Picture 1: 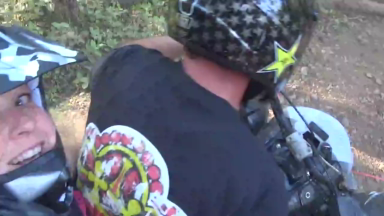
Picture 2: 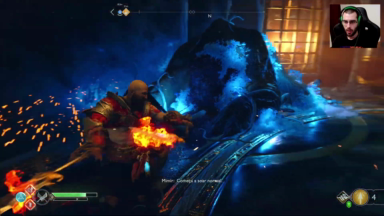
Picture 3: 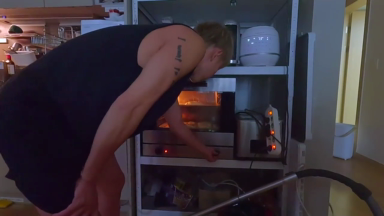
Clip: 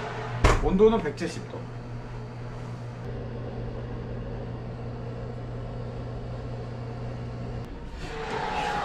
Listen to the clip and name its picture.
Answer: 3